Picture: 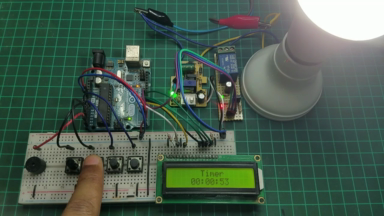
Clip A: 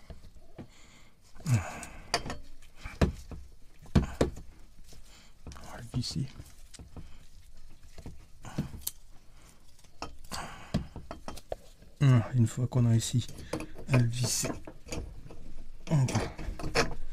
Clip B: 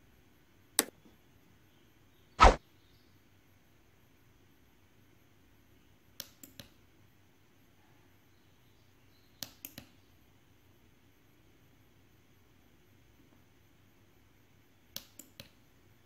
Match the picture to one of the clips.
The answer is B